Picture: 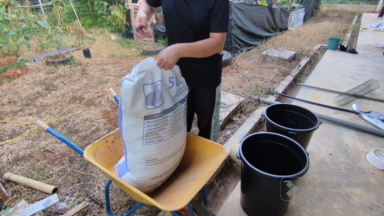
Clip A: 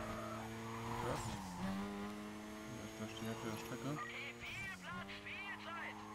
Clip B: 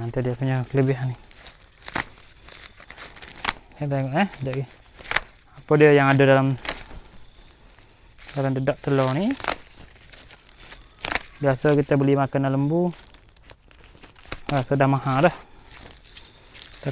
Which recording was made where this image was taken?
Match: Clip B